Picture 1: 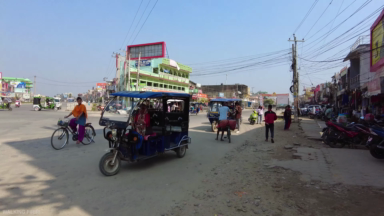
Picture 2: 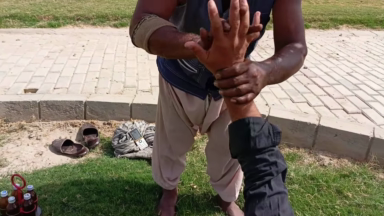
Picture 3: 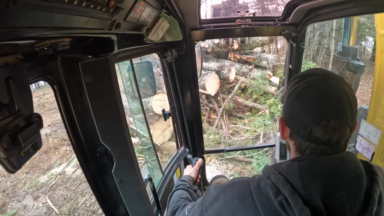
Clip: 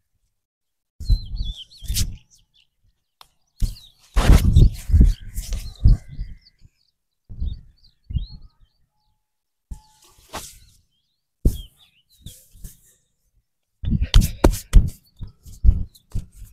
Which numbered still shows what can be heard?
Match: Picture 2